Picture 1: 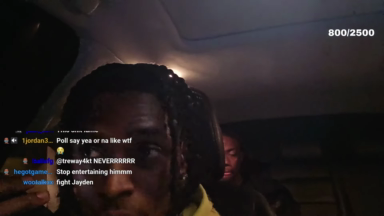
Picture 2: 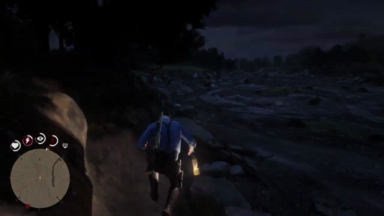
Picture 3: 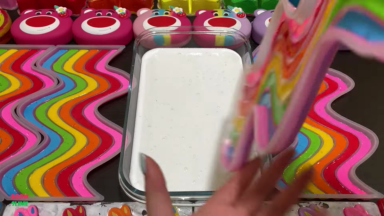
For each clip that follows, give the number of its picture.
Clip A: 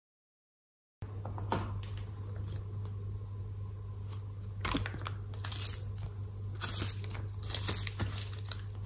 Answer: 3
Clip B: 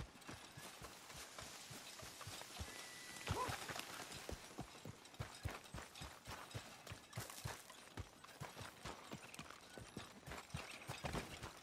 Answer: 2